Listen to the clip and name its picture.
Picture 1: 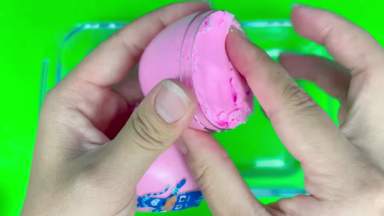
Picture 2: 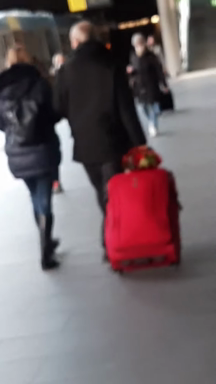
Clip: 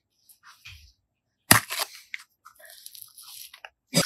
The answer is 1